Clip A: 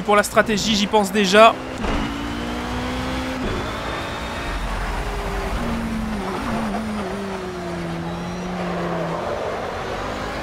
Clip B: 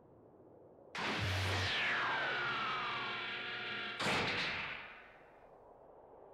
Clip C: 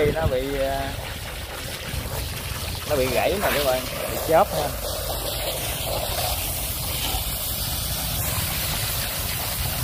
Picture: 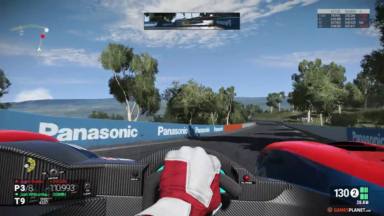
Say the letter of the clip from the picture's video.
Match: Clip A